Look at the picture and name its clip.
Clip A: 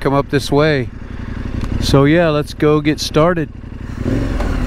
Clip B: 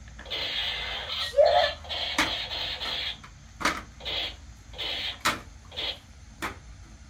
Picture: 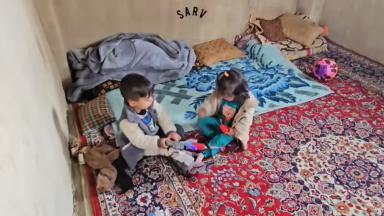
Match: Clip B